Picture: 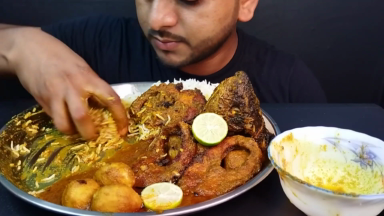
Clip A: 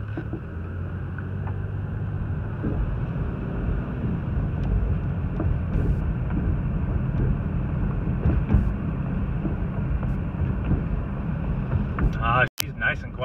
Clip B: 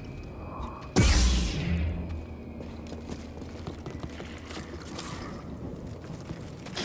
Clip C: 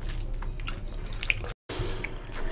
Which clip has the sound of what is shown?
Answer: C